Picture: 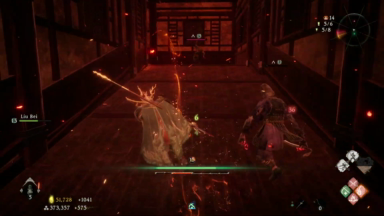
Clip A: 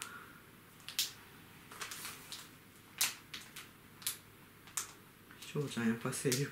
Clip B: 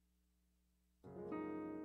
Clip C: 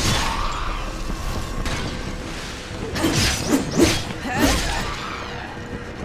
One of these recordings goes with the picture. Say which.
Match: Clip C